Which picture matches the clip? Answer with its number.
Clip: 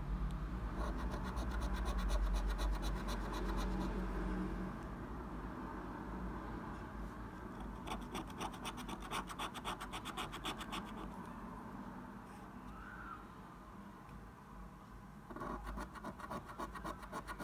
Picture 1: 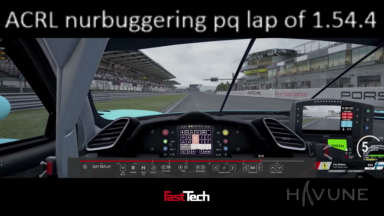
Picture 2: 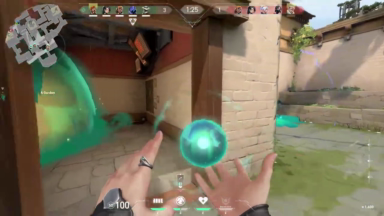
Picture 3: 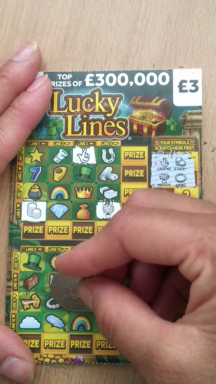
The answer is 3